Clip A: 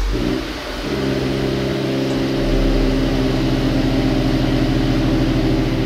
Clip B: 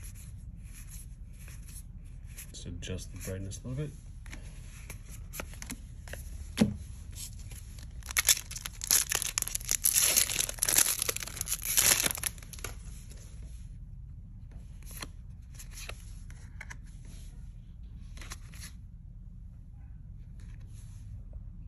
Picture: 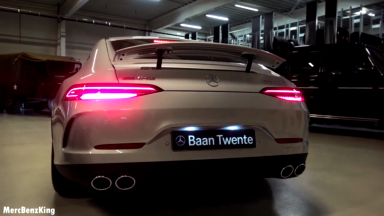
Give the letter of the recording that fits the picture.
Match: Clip A